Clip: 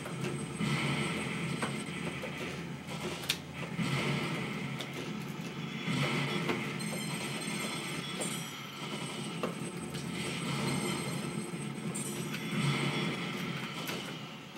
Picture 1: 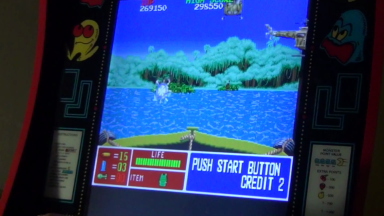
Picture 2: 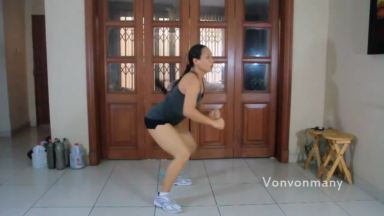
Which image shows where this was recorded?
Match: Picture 1